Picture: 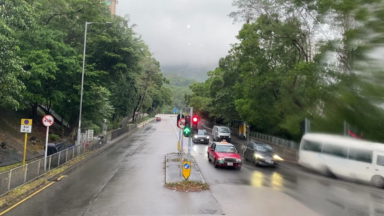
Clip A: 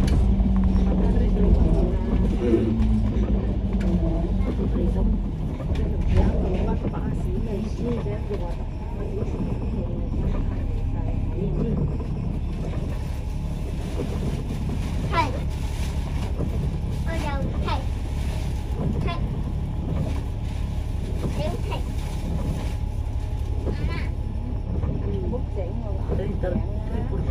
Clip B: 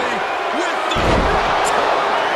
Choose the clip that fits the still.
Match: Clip A